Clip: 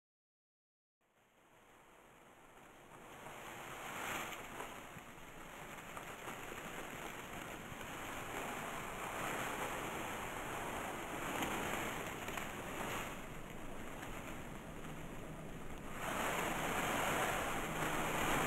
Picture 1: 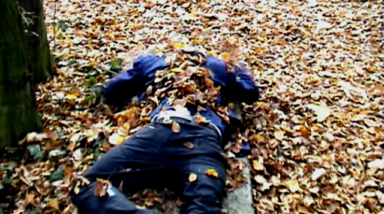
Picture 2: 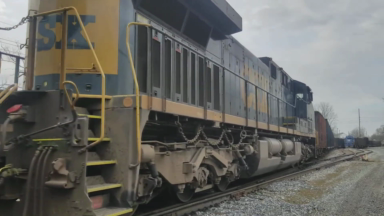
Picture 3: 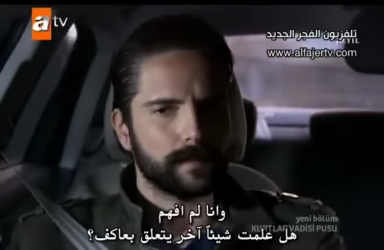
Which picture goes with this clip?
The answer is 1